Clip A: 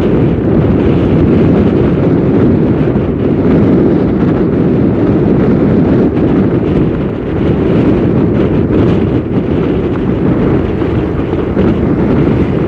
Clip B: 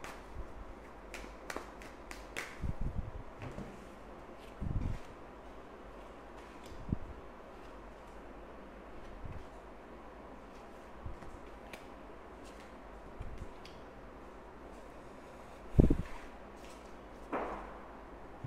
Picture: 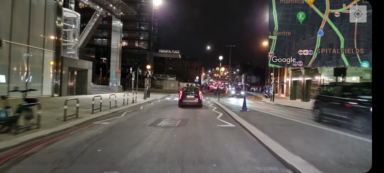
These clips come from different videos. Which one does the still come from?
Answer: A